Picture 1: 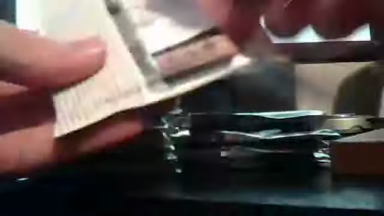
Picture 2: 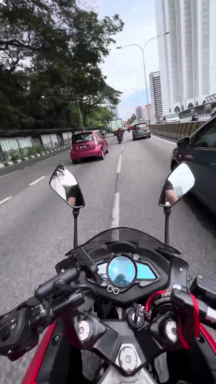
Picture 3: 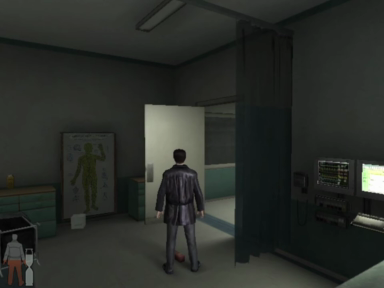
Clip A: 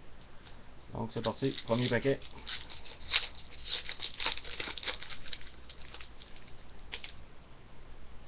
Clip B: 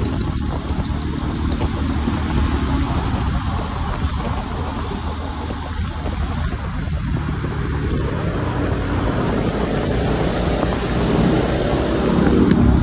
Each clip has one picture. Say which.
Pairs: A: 1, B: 2